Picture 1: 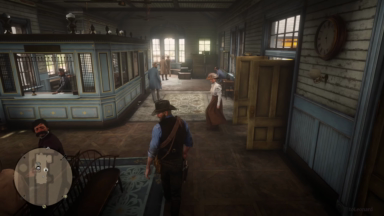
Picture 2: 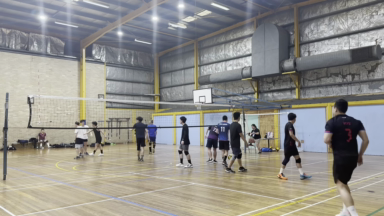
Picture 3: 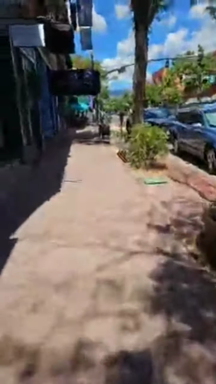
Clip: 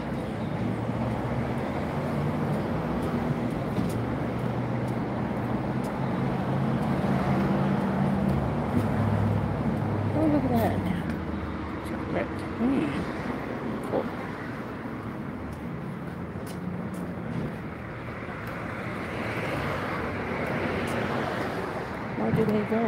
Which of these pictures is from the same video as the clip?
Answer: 3